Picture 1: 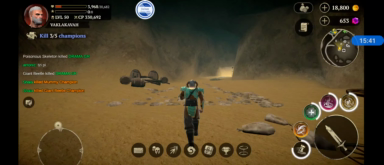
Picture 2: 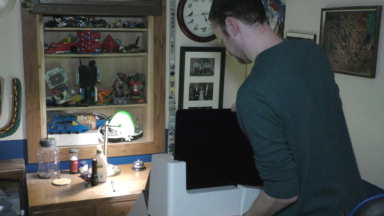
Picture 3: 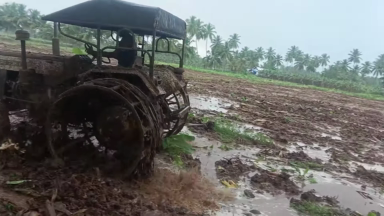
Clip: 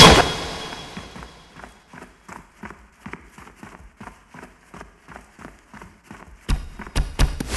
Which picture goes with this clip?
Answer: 1